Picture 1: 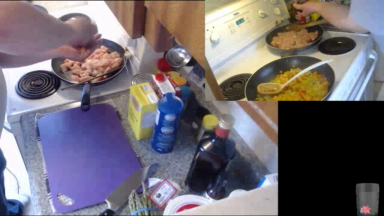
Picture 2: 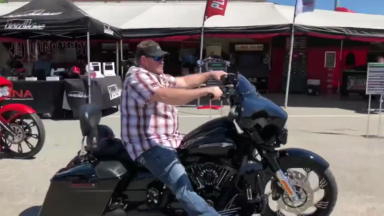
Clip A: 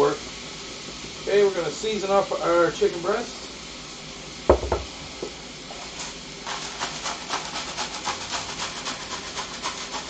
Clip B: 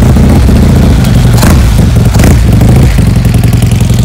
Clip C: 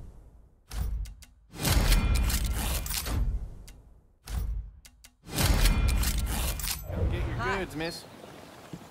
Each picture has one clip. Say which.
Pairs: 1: A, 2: B